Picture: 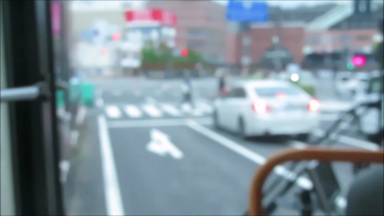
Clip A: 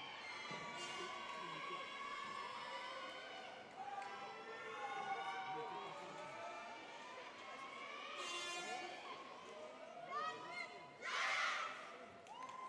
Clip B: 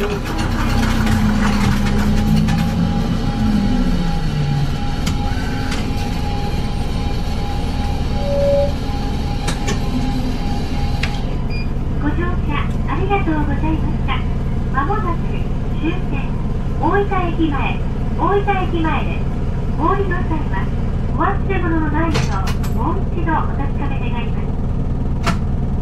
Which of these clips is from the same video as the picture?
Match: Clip B